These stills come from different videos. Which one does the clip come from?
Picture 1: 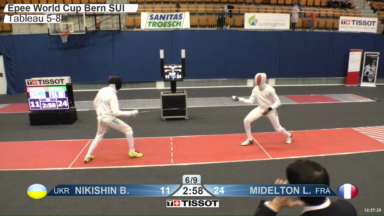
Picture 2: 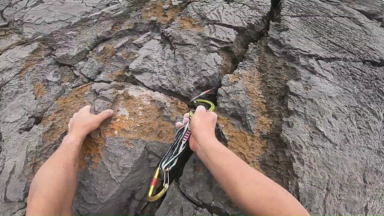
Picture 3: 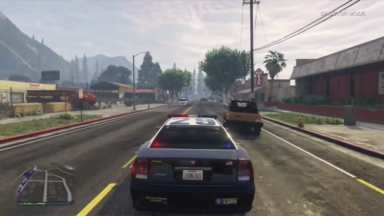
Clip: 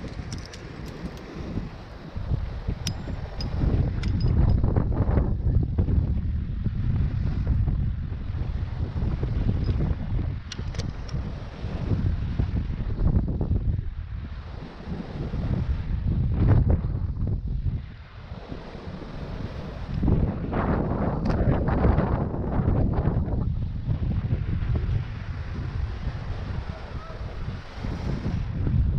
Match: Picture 2